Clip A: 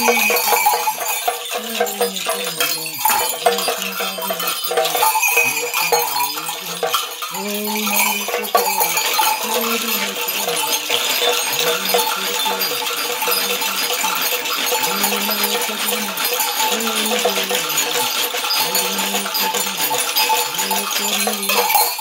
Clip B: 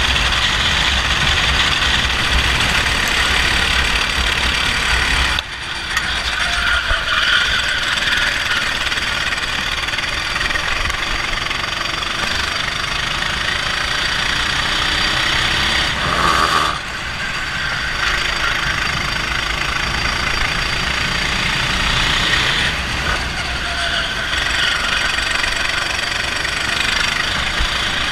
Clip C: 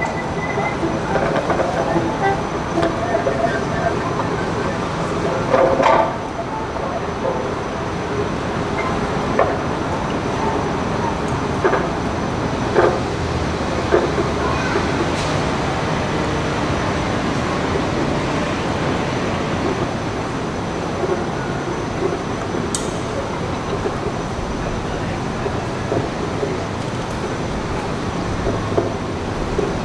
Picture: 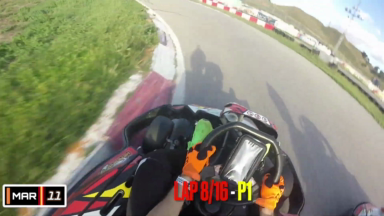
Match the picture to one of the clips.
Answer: B